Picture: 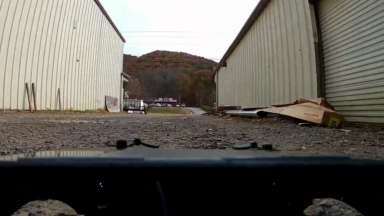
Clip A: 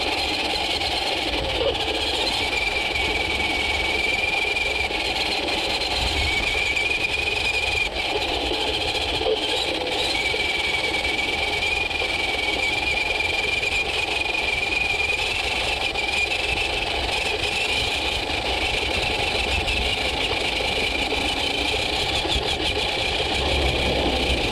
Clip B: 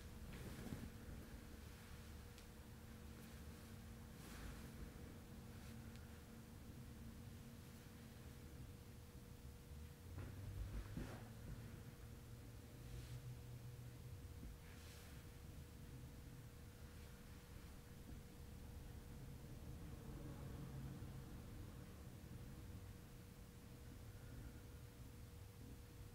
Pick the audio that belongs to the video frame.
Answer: A